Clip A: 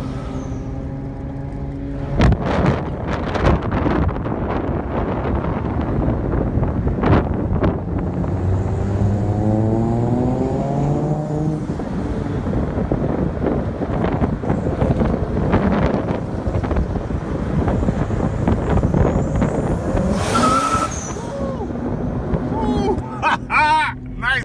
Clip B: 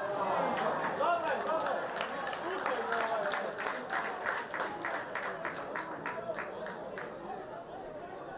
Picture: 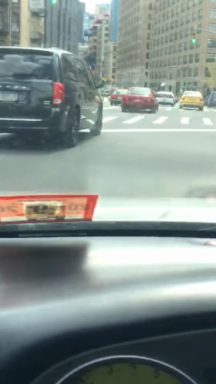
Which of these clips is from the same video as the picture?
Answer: A